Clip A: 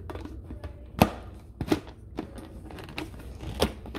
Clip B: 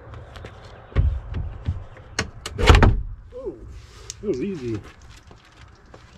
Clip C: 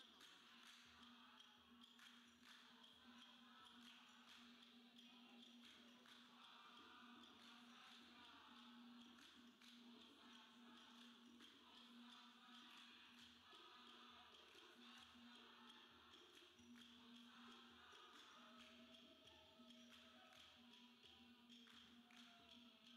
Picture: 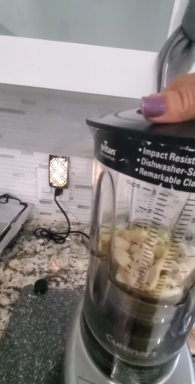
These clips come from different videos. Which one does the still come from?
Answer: A